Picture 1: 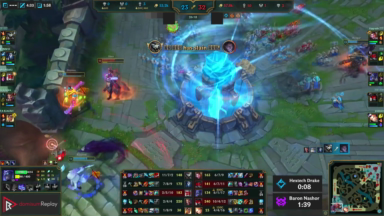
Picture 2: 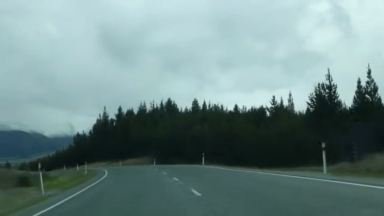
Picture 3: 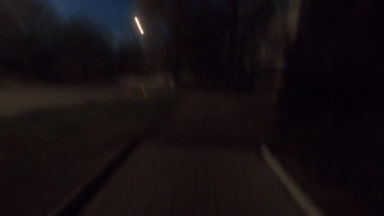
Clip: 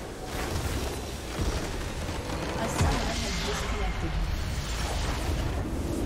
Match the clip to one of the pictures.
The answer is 1